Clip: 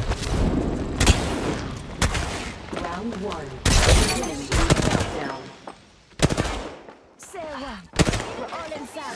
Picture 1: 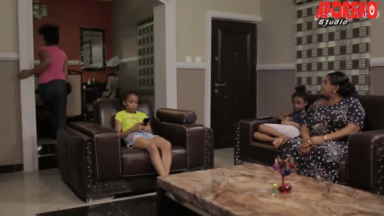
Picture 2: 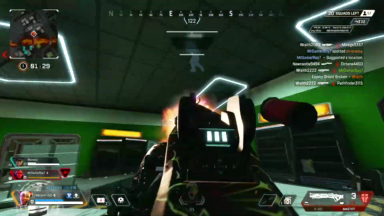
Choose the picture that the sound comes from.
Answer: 2